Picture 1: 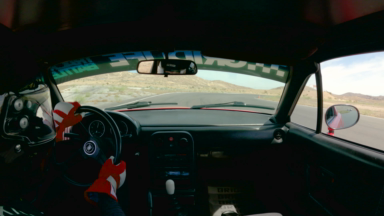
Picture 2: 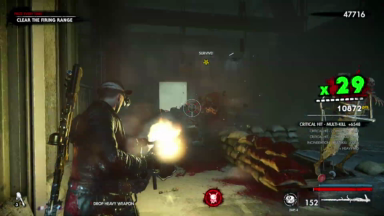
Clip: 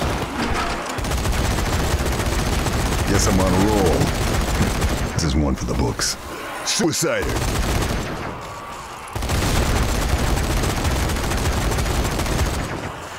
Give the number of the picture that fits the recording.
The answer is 2